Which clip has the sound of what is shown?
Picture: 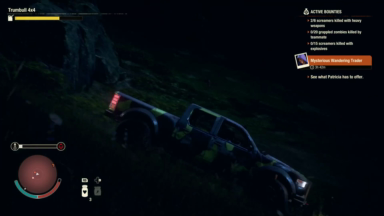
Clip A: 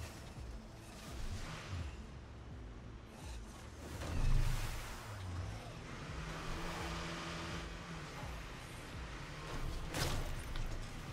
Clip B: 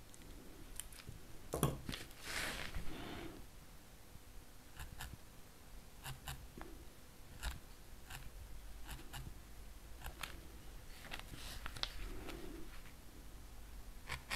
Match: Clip A